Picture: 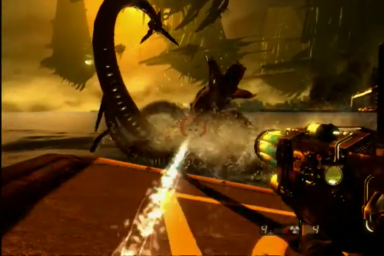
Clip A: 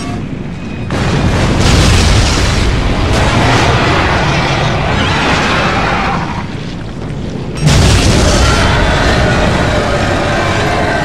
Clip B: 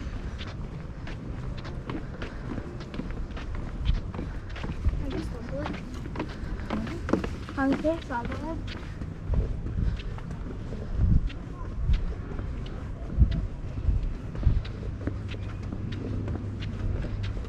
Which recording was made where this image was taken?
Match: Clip A